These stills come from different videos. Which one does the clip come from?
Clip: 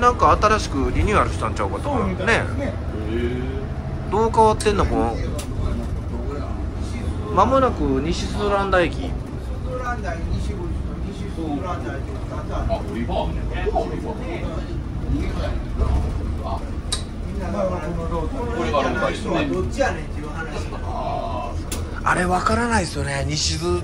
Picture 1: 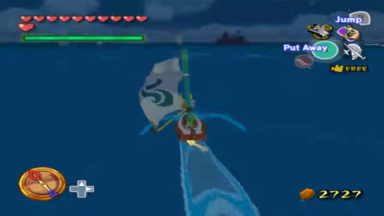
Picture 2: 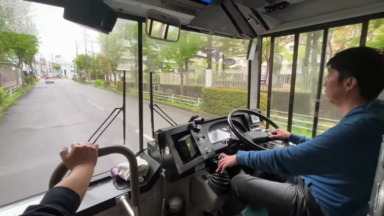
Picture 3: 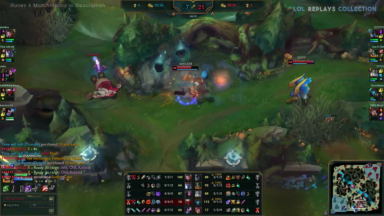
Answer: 2